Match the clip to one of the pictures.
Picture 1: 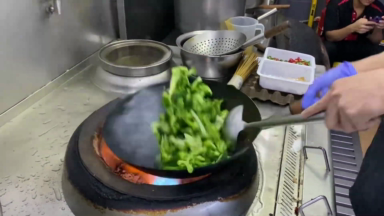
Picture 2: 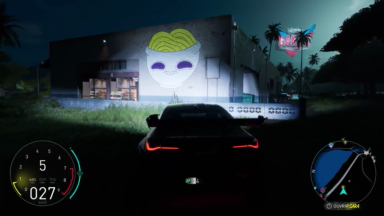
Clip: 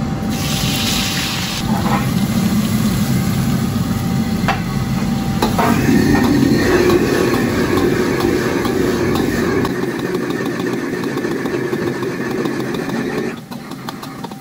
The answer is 1